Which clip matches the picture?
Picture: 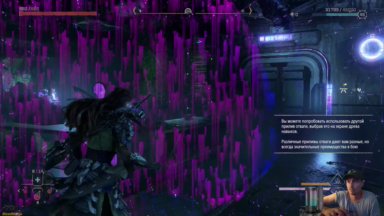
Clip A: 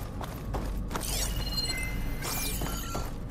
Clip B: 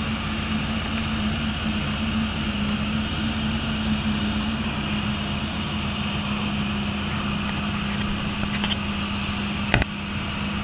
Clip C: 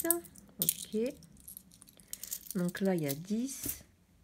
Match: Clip A